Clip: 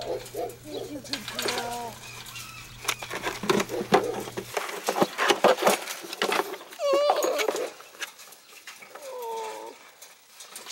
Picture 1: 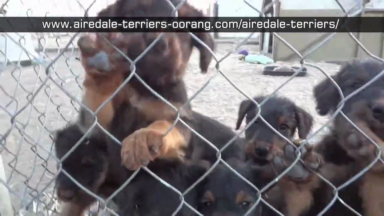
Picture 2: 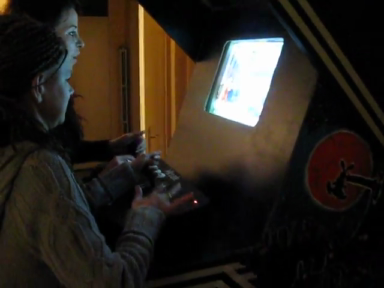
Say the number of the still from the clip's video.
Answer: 1